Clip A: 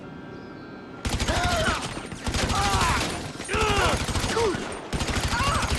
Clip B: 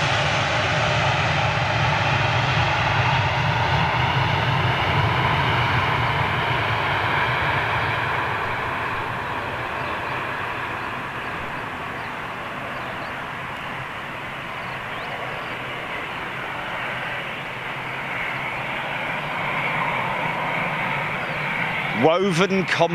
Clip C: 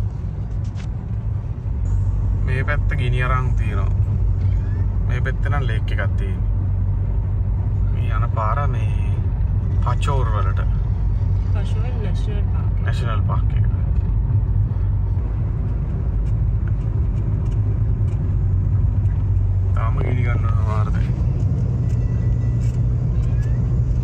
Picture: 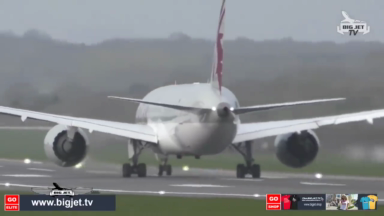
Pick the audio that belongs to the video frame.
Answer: B